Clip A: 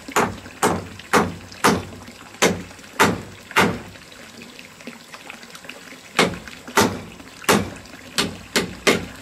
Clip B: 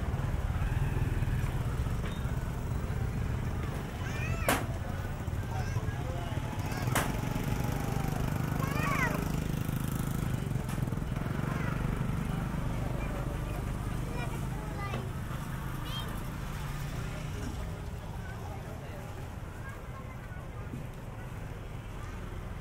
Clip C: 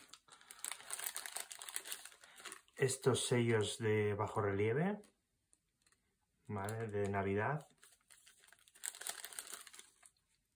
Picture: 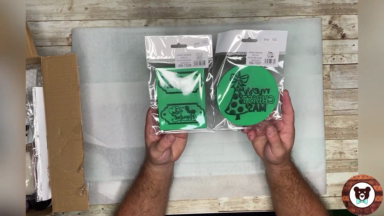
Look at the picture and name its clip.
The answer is C